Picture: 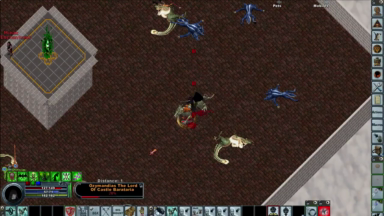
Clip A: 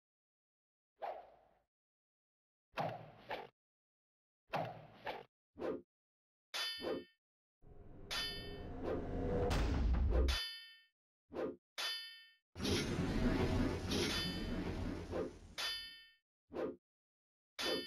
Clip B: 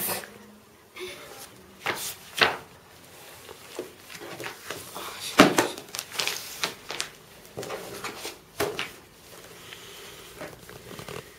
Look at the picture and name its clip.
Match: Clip A